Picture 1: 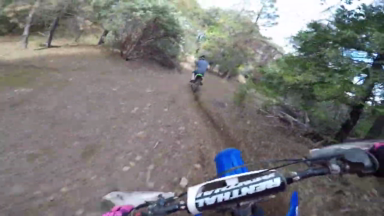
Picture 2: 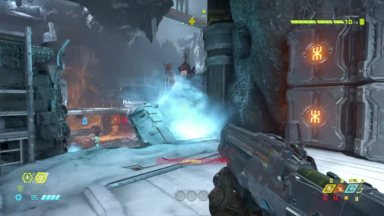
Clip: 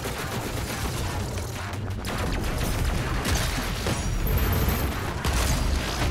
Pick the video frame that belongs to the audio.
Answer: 2